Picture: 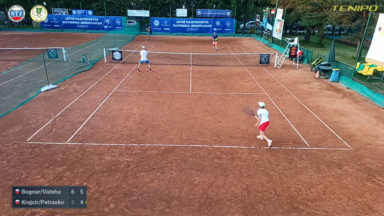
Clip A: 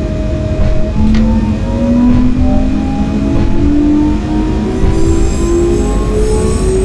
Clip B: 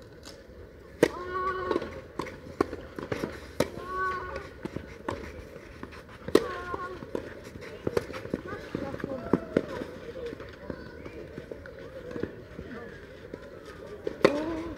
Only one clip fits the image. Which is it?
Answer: B